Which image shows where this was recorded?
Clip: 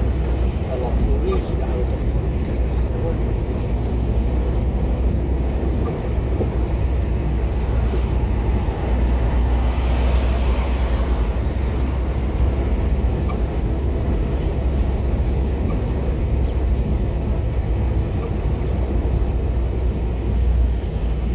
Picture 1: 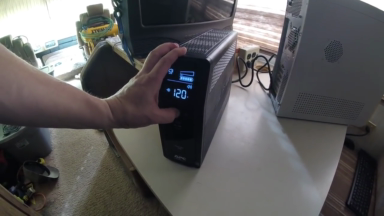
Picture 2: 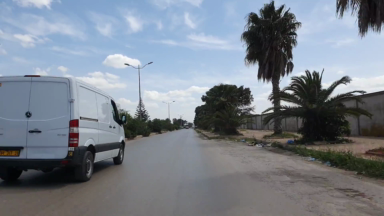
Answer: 2